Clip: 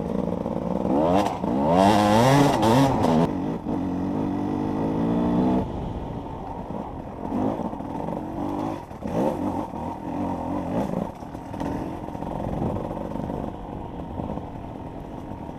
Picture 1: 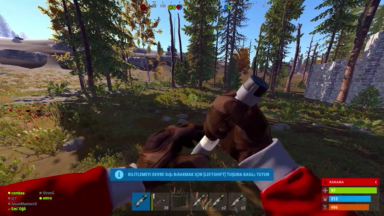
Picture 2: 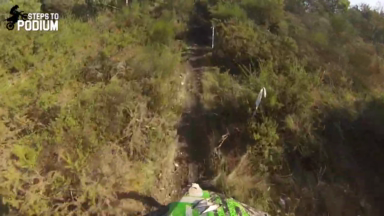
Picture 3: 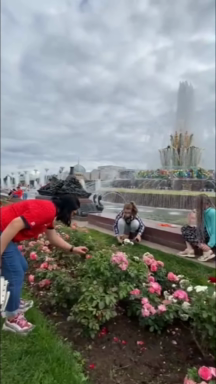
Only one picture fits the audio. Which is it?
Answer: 2